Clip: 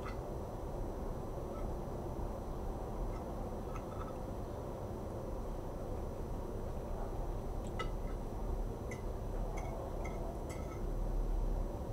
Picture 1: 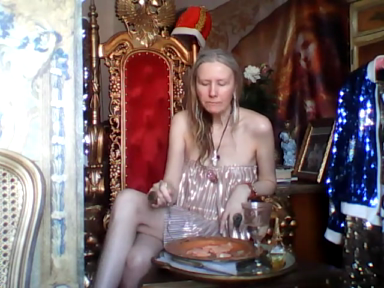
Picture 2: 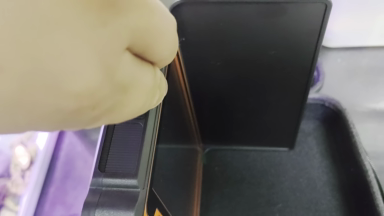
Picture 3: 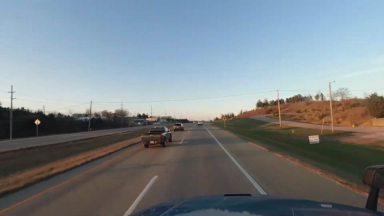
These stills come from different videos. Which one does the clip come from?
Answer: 1